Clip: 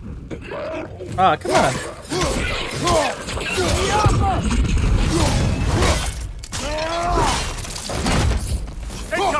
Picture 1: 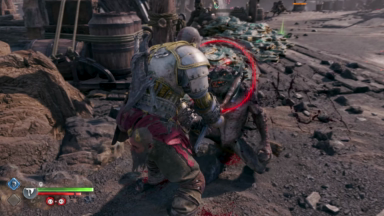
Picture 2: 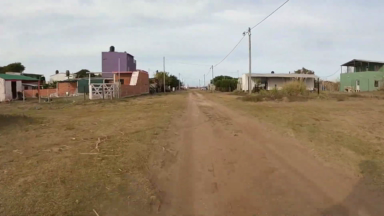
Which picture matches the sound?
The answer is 1